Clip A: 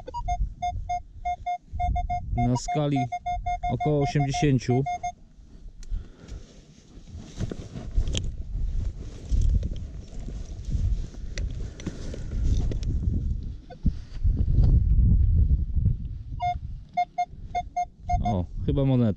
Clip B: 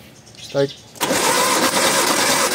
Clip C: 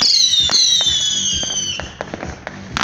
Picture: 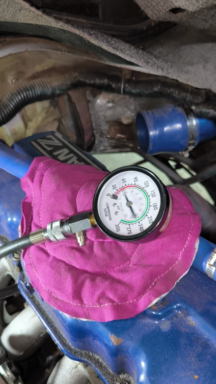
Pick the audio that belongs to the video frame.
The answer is B